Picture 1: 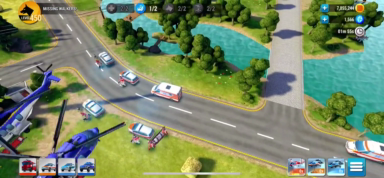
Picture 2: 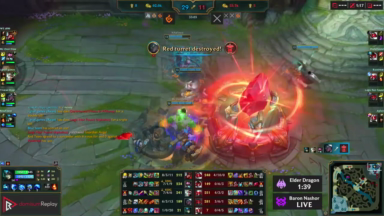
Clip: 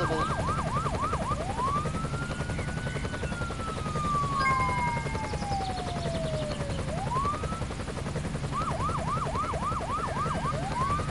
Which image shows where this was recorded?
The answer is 1